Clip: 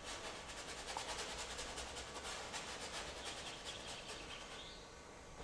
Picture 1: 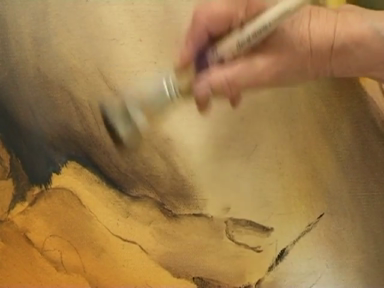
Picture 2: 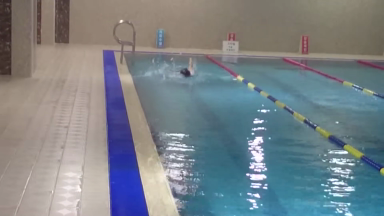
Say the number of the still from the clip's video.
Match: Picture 1